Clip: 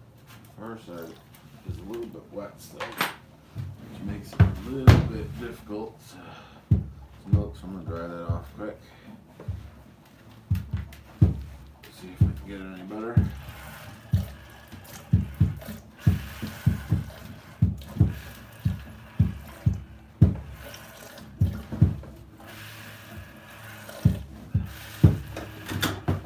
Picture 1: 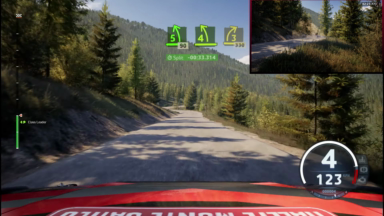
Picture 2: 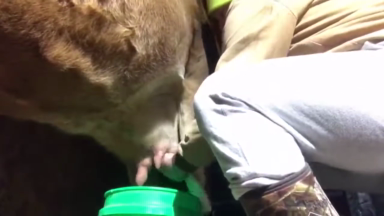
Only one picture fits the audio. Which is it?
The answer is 2